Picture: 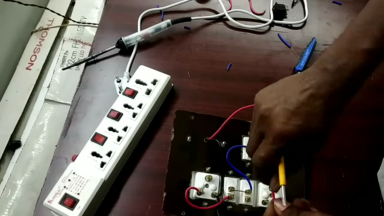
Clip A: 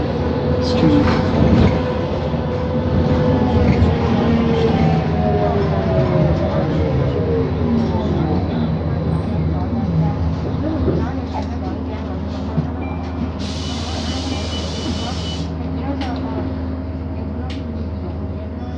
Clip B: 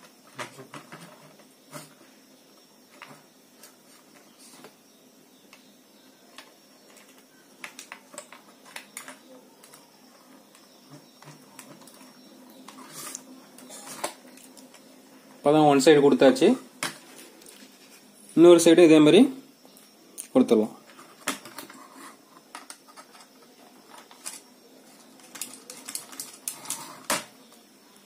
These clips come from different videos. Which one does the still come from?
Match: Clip B